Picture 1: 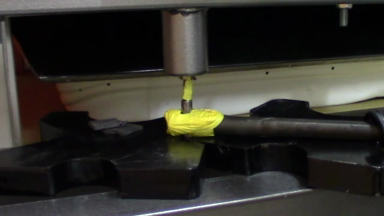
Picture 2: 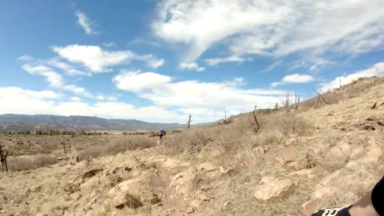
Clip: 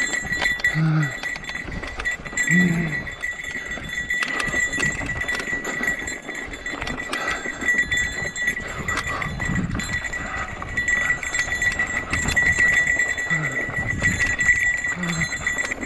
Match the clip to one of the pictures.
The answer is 2